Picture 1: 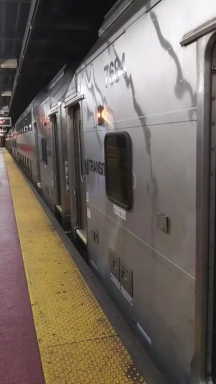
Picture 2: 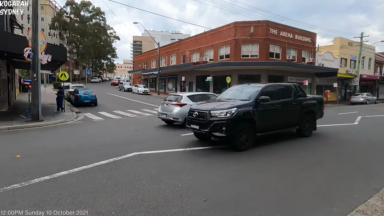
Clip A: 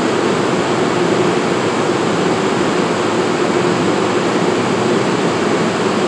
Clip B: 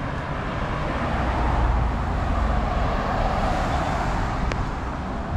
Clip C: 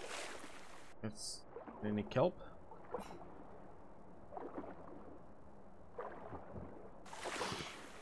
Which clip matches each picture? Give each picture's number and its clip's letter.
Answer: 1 A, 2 B